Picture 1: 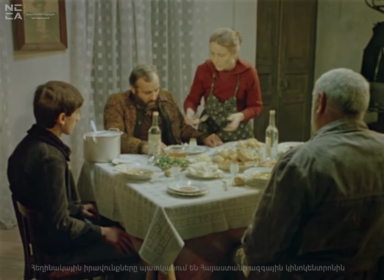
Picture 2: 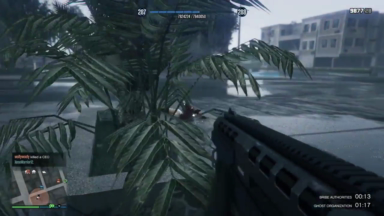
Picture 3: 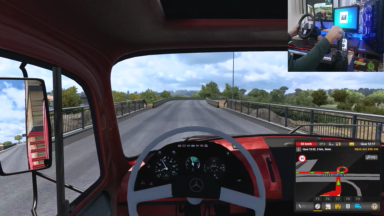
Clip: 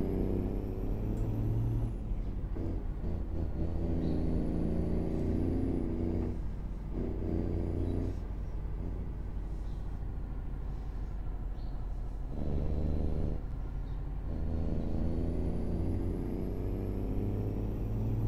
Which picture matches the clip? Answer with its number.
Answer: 3